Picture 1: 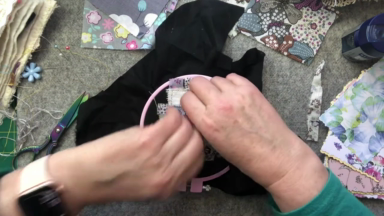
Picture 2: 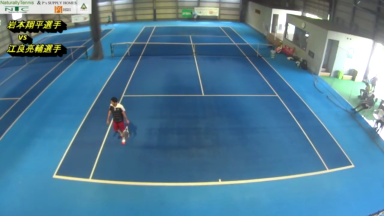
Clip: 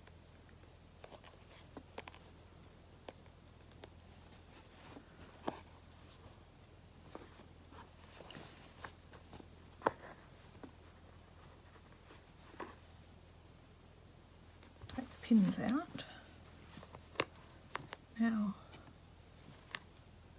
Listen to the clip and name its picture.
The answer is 1